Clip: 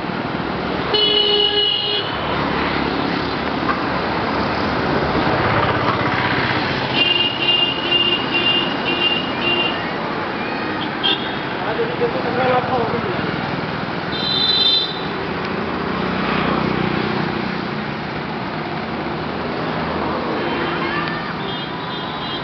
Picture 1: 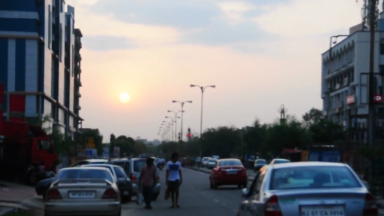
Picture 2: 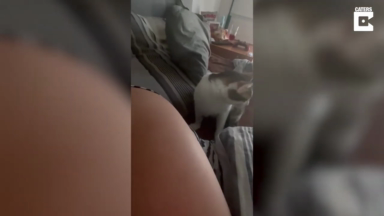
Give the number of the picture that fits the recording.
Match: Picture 1